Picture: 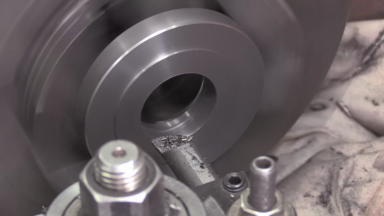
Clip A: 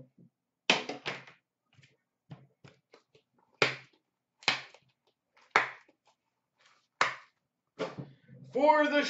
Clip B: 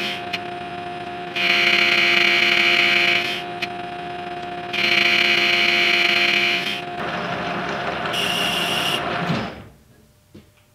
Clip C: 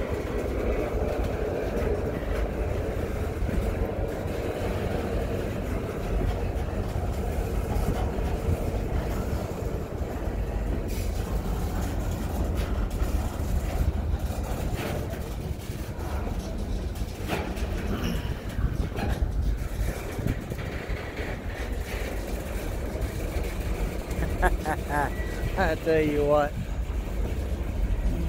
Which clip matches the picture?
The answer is B